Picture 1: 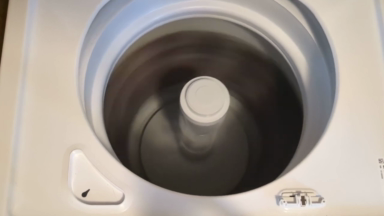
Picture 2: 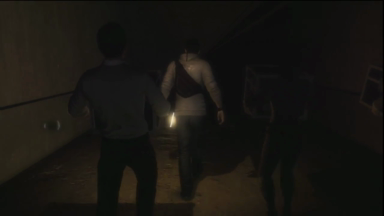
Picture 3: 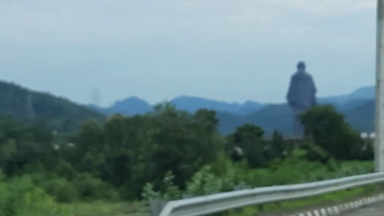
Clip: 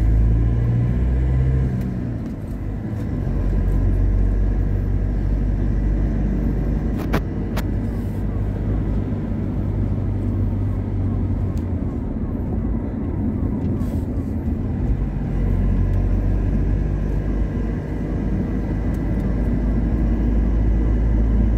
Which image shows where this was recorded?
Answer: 3